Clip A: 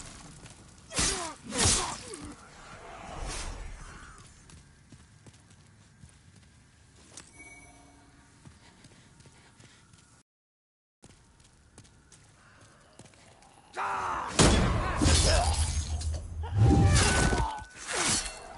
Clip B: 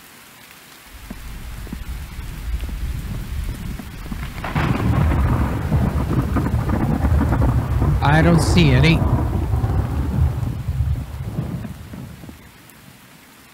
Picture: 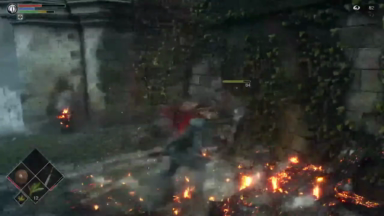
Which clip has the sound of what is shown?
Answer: A